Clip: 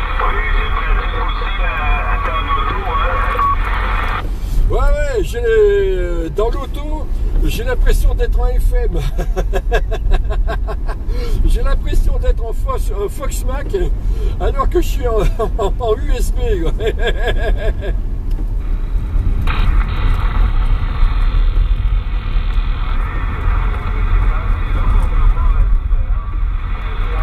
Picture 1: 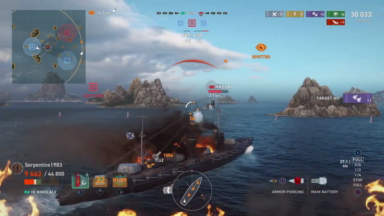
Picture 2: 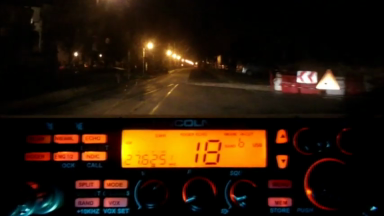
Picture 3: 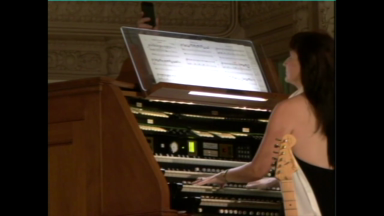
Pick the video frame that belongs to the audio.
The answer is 2